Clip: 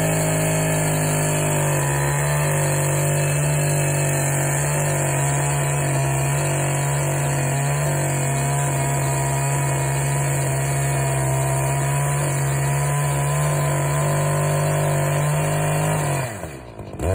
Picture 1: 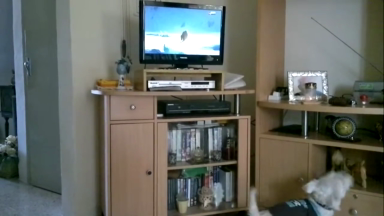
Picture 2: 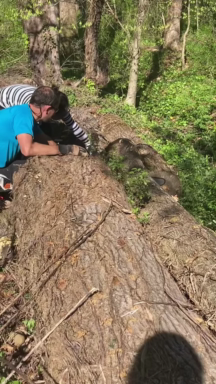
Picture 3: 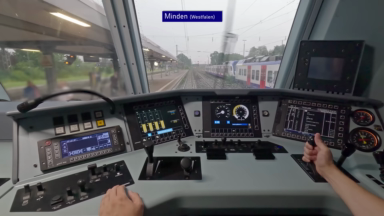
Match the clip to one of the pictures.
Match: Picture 2